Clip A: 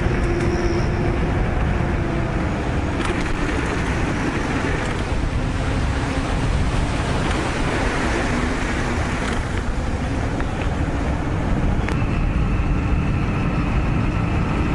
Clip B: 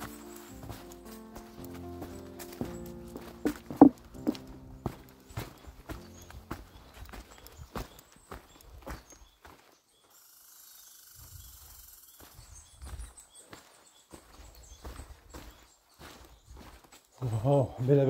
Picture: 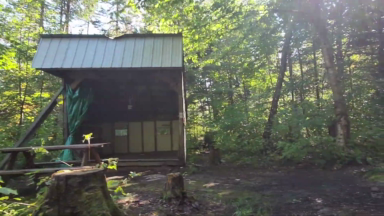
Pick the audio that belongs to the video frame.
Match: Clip B